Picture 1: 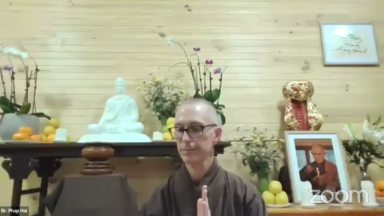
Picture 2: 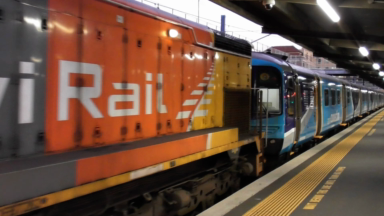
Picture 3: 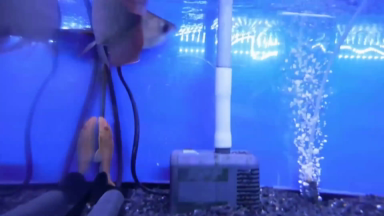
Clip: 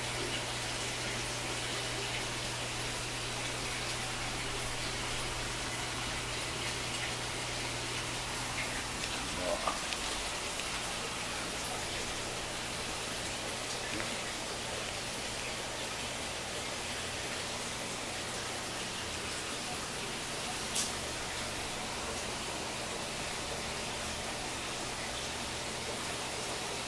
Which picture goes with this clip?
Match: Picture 3